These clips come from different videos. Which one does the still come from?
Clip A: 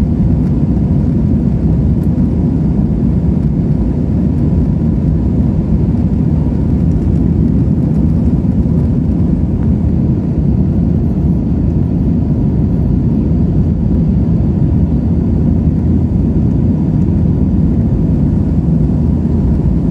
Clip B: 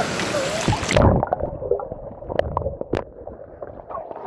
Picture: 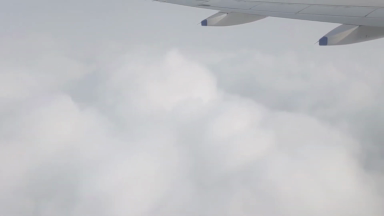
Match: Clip A